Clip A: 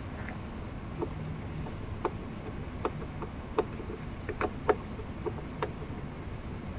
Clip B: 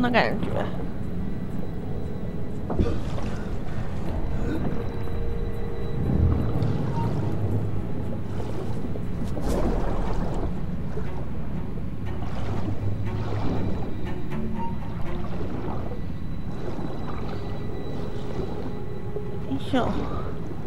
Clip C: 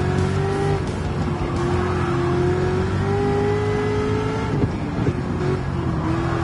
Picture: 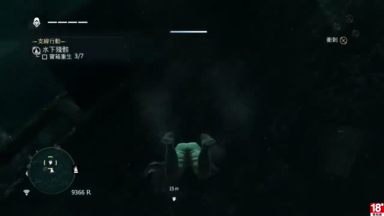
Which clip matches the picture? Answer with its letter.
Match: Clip B